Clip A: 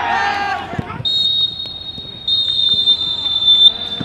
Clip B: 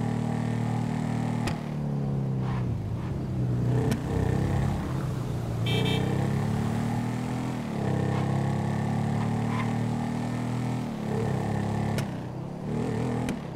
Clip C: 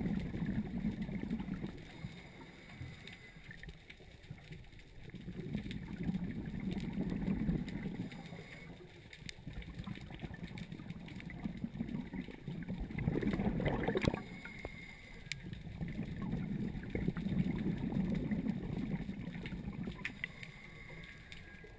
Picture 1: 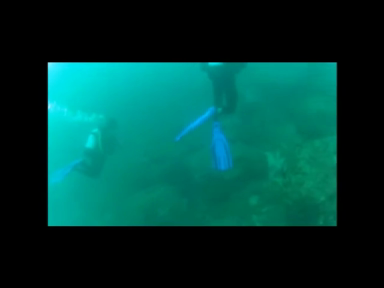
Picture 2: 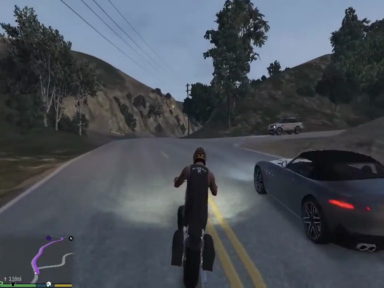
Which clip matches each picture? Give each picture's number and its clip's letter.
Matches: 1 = C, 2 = B